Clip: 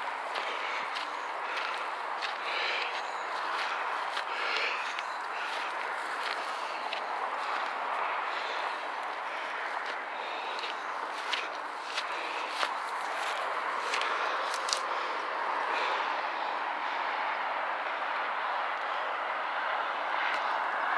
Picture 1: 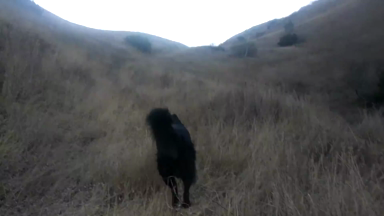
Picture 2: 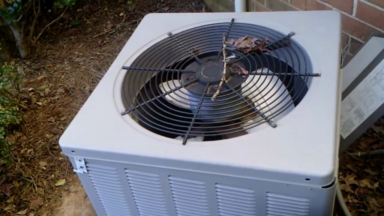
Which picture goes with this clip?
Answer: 1